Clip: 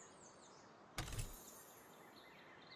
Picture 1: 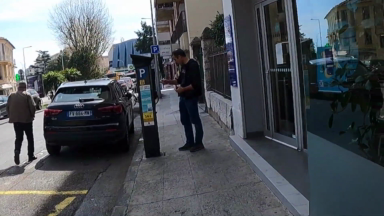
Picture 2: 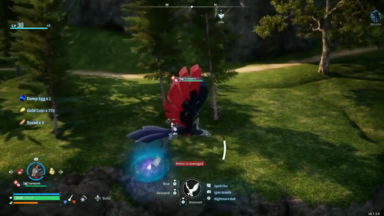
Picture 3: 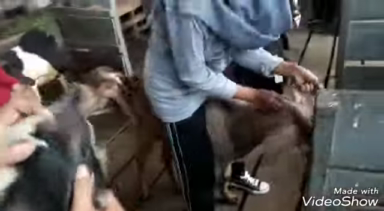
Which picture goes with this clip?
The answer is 2